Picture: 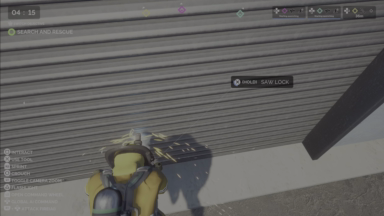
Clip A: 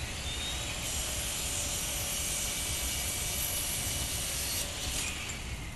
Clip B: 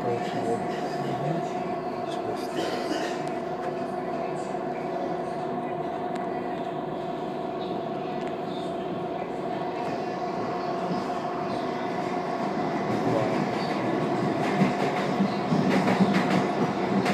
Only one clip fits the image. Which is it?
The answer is A